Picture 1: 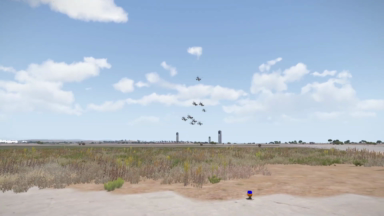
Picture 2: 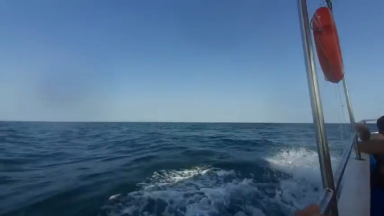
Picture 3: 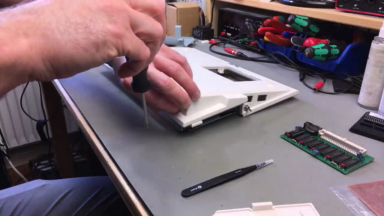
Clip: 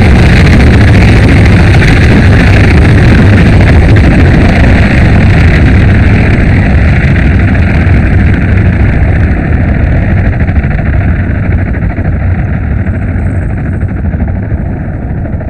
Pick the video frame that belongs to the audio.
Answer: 1